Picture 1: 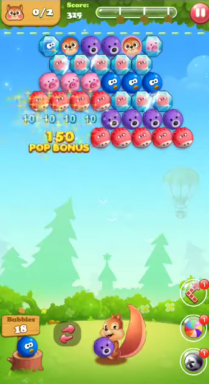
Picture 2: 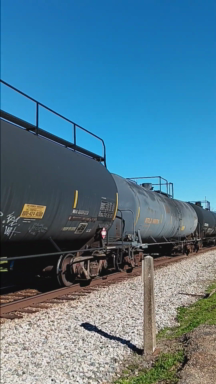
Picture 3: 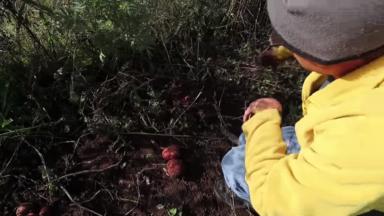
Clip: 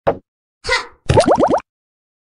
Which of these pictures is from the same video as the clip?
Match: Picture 1